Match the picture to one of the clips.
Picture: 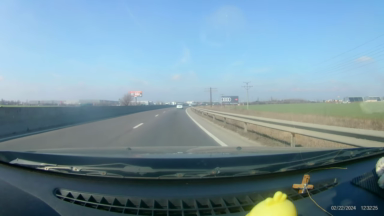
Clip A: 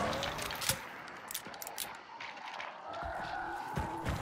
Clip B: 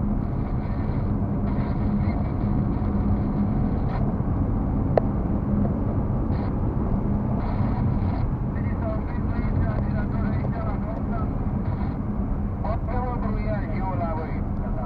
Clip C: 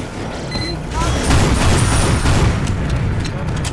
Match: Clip B